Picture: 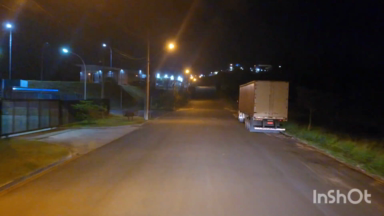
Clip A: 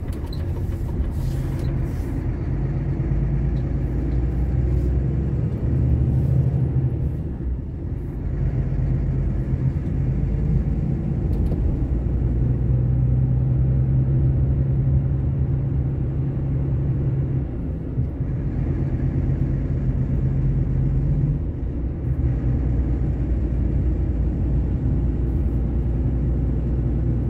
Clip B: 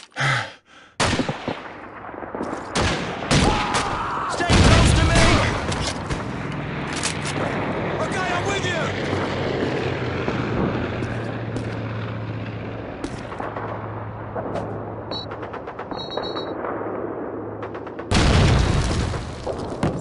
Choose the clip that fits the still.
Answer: A